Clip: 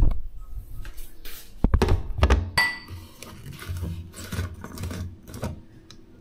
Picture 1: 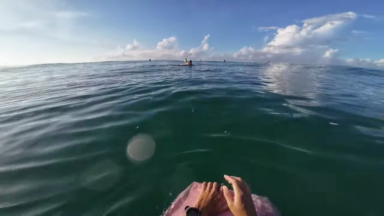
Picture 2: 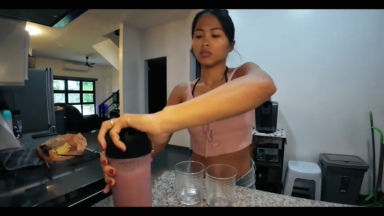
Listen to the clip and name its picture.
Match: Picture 2